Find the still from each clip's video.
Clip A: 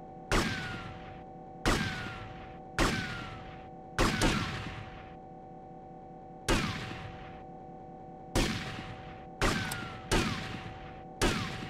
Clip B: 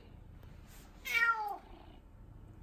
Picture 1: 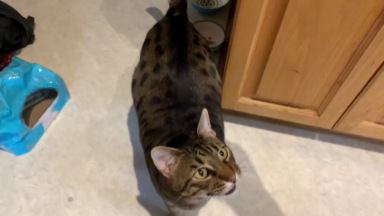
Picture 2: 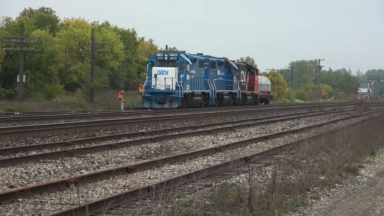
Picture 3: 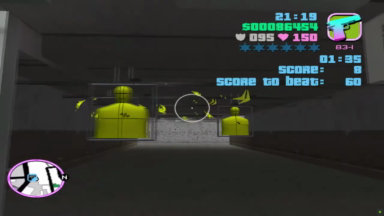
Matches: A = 3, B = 1